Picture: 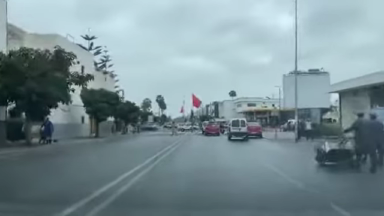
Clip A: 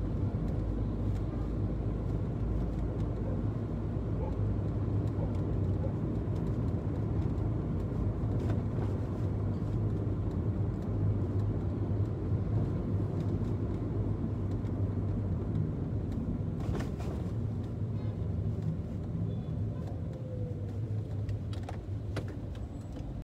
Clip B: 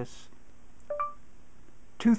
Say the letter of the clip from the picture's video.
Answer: A